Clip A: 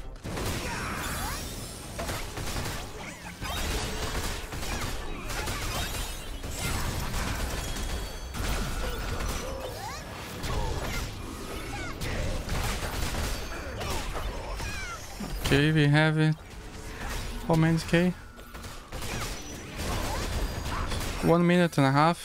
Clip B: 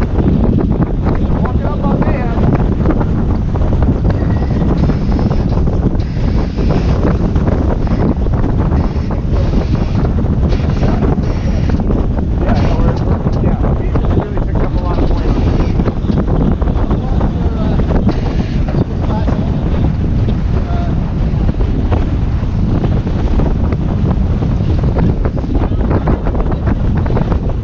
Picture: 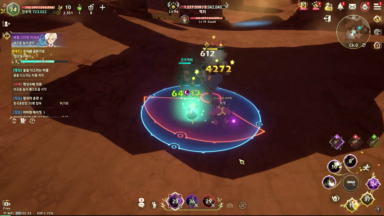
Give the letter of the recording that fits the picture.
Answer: A